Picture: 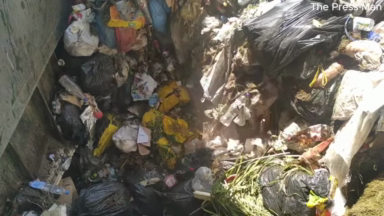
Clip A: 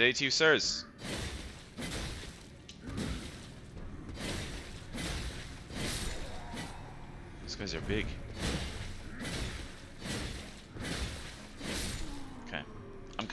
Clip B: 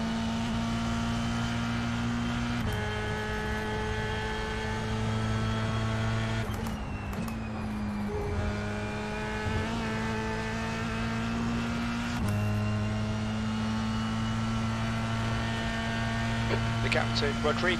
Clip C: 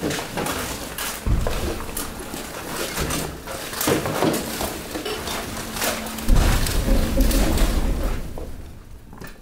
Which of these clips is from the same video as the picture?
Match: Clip C